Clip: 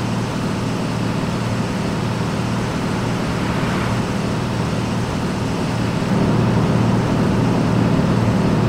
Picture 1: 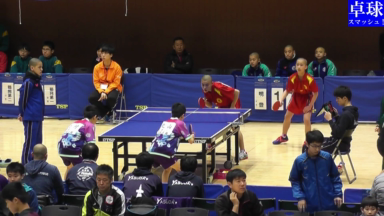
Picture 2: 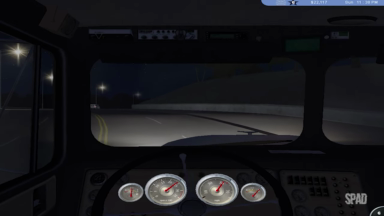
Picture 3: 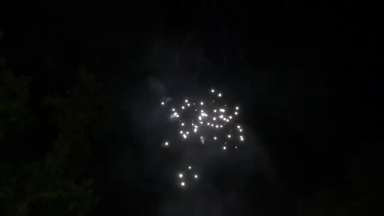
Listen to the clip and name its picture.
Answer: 2